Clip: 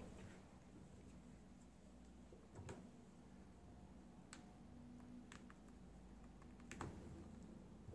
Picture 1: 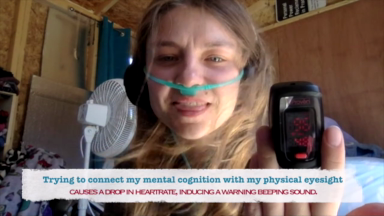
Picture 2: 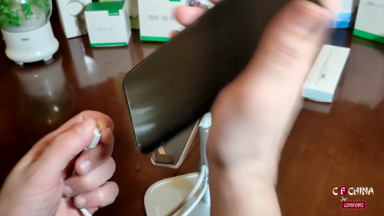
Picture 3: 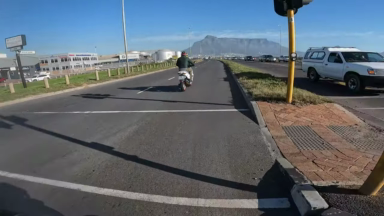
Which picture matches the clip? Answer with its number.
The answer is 2